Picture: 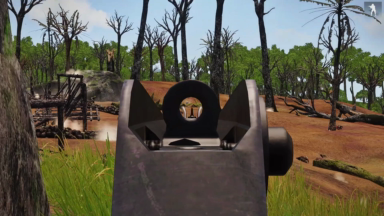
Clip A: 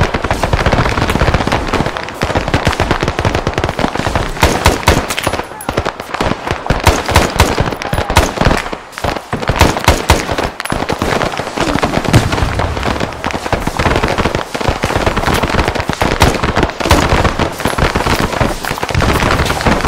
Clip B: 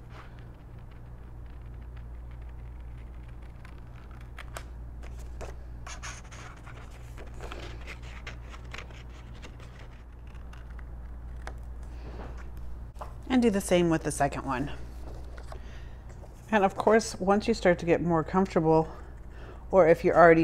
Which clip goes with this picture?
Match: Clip A